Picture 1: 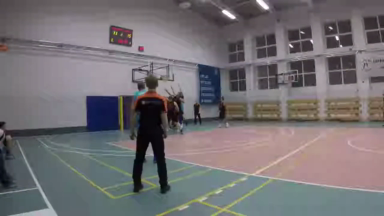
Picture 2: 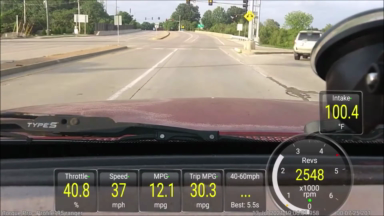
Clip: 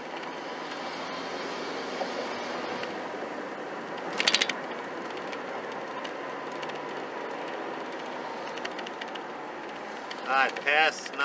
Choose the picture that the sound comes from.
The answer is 2